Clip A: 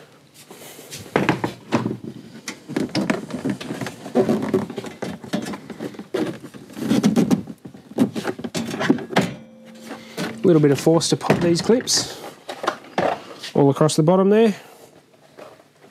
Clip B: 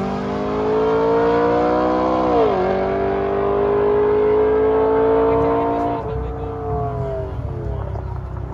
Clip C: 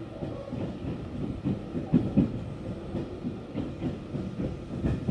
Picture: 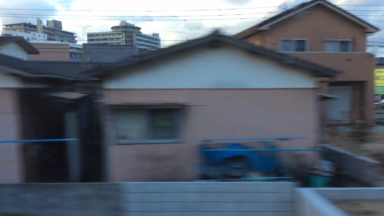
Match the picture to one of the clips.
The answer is C